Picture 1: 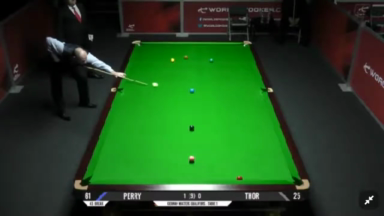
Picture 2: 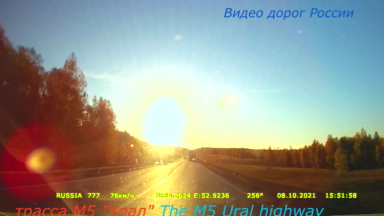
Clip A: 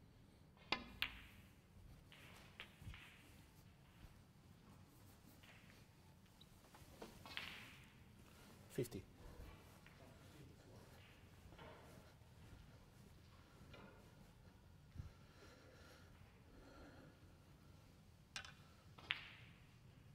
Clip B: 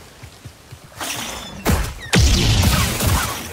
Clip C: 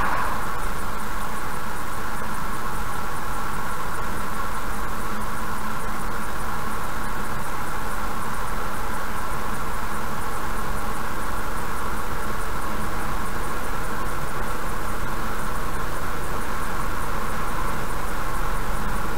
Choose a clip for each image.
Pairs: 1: A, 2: C